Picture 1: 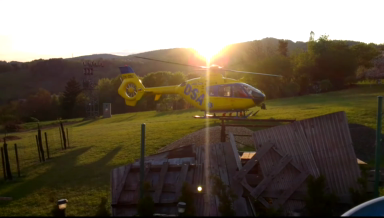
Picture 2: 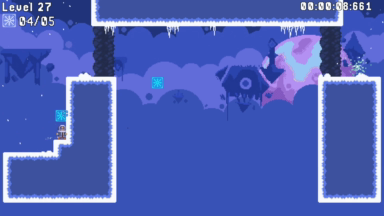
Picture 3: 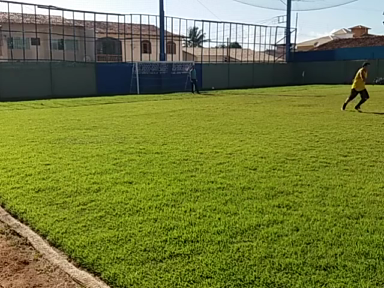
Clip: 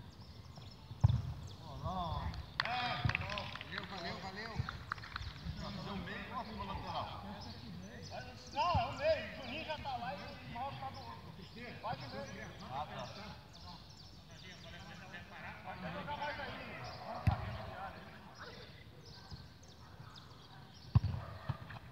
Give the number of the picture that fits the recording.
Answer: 3